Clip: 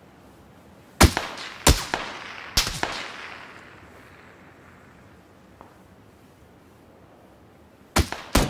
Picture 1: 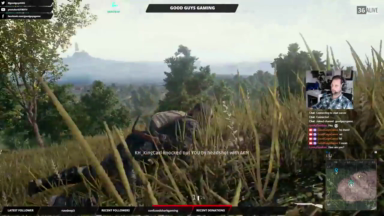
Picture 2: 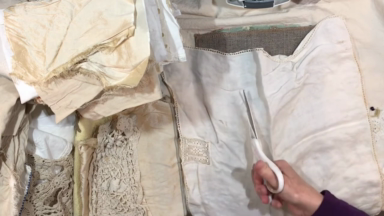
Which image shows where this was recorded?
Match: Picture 1